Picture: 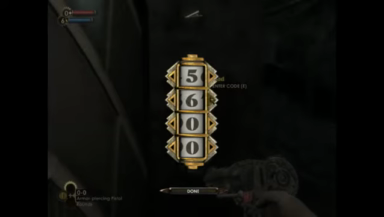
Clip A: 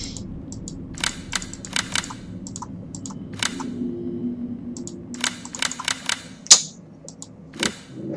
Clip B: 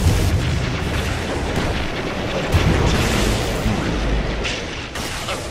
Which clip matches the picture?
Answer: A